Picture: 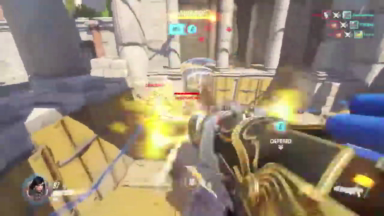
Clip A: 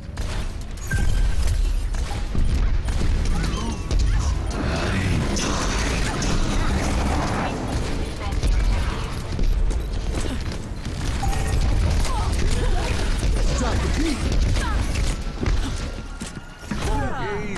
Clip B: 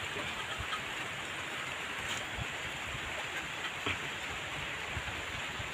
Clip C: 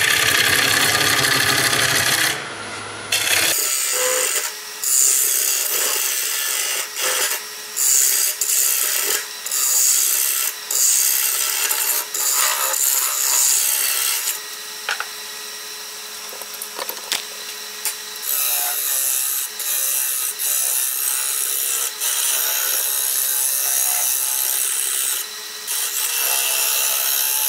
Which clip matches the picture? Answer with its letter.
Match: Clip A